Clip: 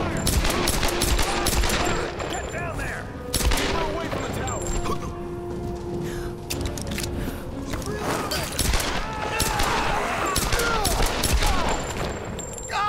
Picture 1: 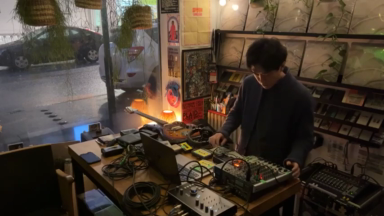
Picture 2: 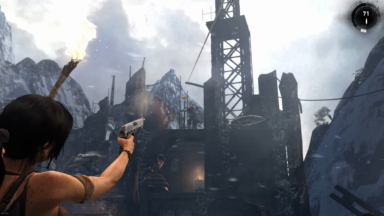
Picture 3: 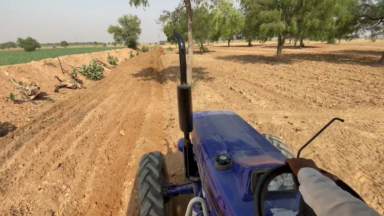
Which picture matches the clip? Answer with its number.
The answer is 2